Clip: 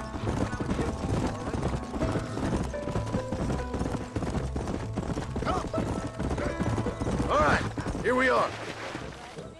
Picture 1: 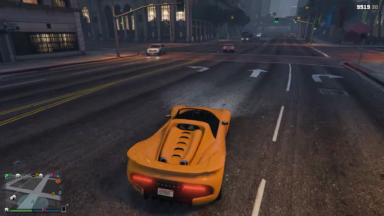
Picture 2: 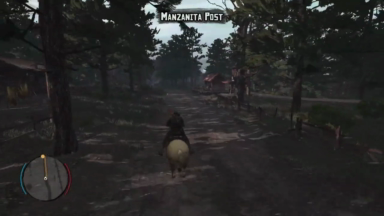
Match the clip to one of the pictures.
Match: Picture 2